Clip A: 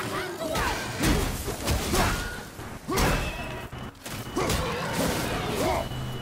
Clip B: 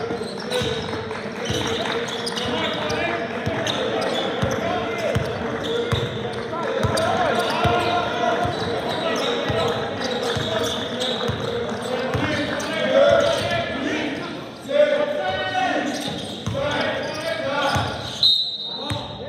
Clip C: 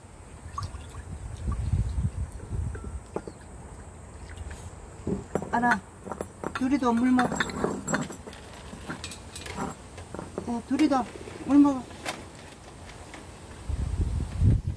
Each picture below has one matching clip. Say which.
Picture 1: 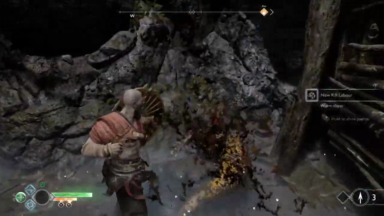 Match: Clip A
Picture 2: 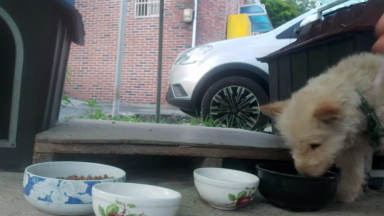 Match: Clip C